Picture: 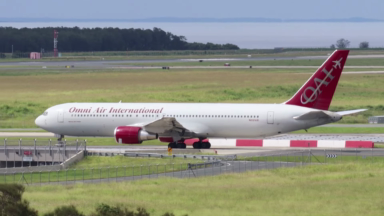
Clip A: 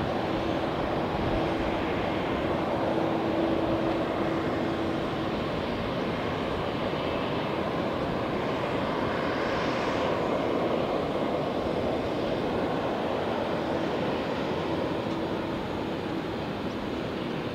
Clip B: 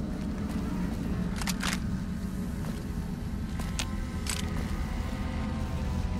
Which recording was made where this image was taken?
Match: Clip A